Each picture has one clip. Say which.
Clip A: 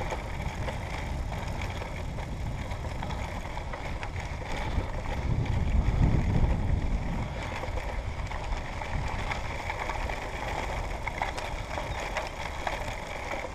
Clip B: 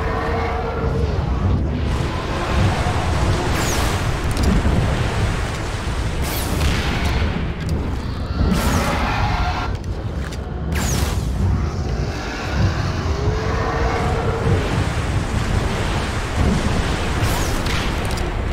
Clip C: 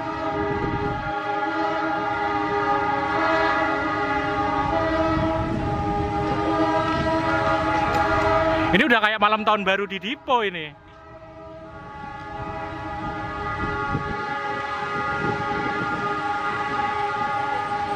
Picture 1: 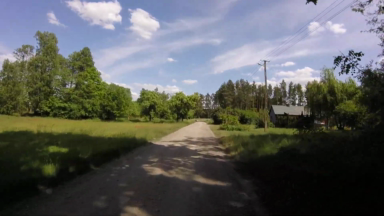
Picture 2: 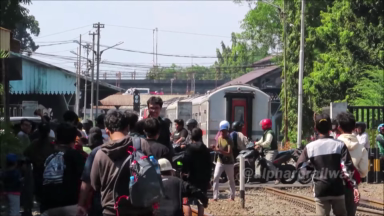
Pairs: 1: A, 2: C